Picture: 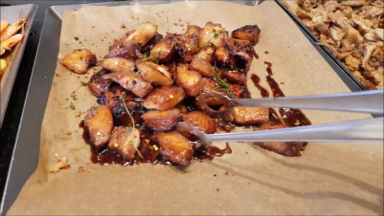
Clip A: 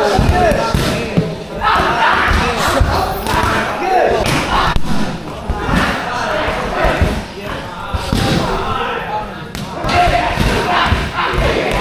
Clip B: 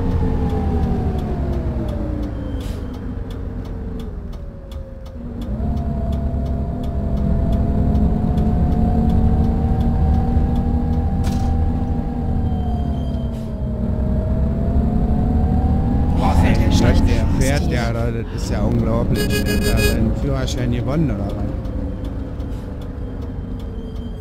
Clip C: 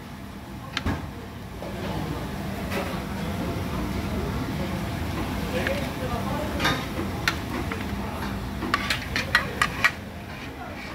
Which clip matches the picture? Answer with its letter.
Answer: C